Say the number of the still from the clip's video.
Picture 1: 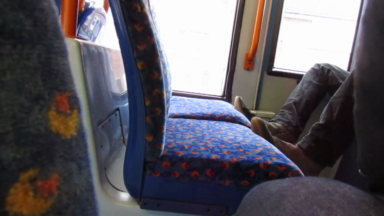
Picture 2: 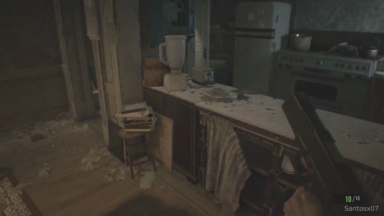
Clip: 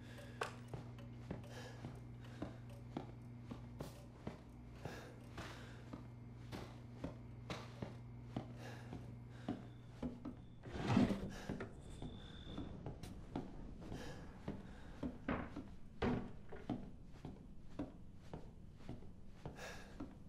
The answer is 2